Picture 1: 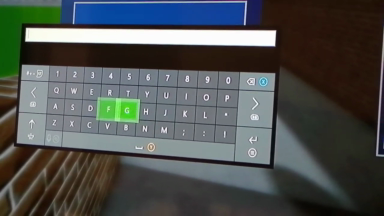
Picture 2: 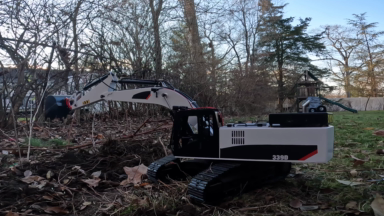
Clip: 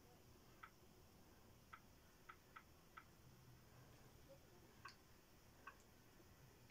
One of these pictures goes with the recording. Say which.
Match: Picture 1